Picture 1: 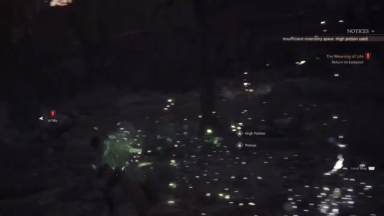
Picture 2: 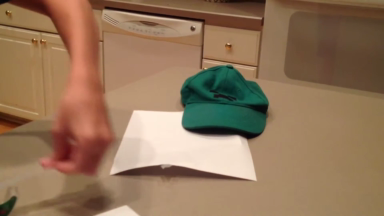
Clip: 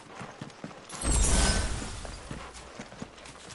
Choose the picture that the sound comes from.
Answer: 1